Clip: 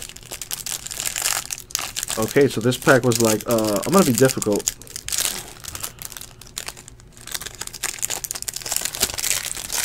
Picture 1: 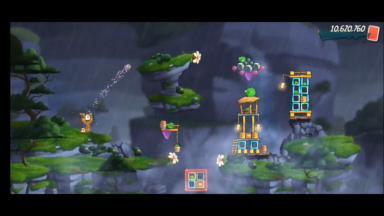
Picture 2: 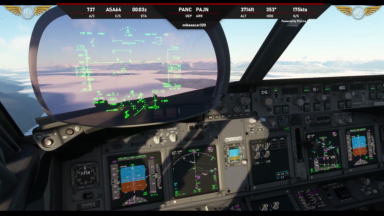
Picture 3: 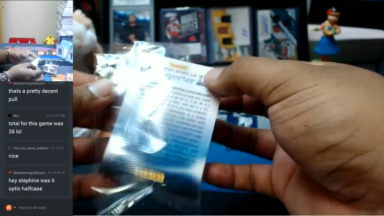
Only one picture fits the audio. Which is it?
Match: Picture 3